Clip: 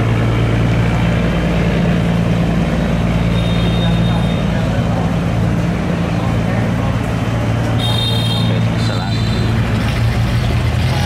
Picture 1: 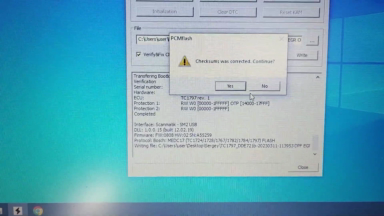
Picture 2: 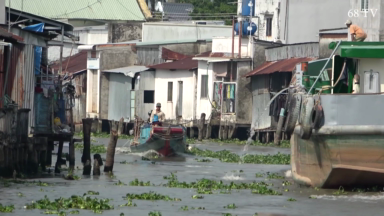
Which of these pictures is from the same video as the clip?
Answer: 2